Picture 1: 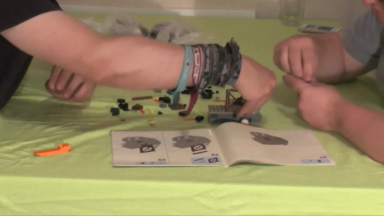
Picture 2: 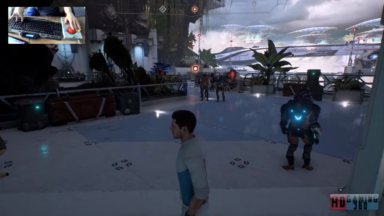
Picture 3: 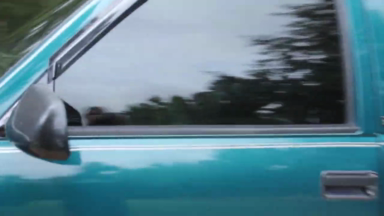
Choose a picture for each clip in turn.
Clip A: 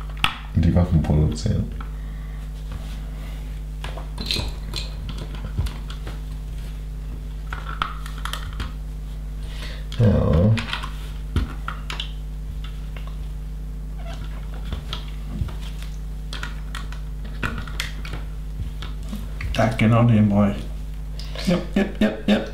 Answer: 1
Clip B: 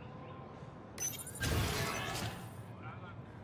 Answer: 2